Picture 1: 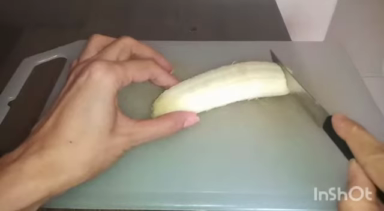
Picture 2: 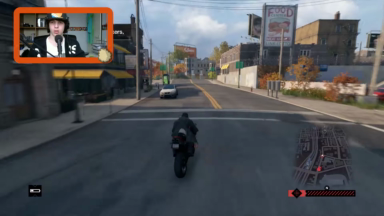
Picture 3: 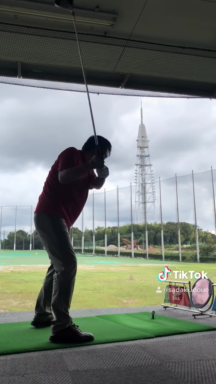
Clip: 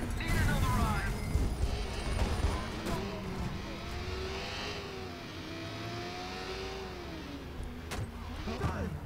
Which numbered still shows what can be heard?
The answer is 2